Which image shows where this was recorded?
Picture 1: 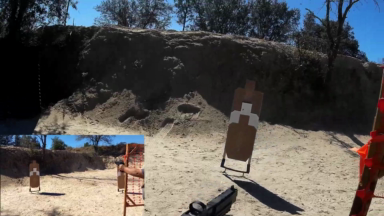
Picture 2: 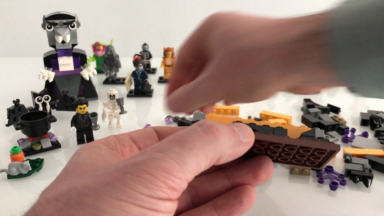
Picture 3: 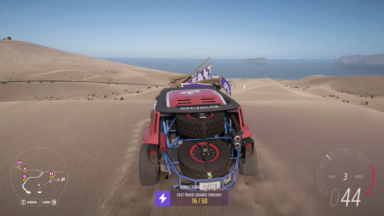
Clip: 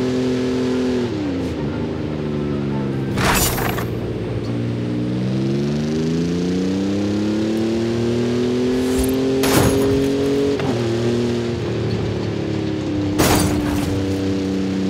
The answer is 3